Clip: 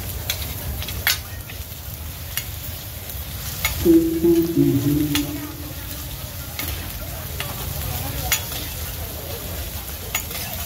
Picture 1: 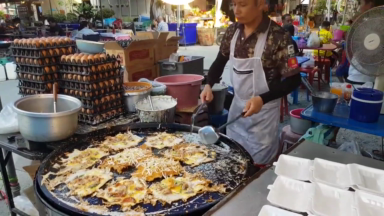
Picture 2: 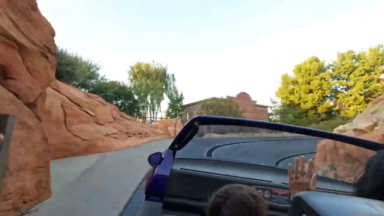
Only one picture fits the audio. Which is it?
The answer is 1